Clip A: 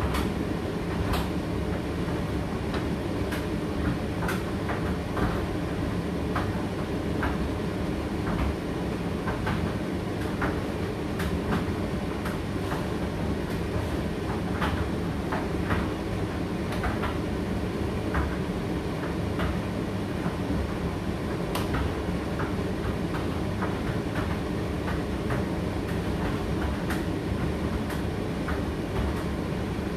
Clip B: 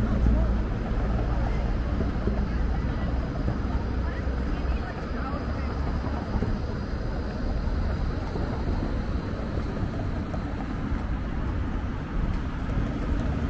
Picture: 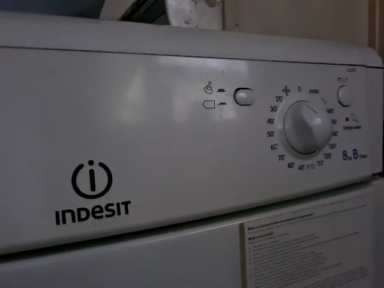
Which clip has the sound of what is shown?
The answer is A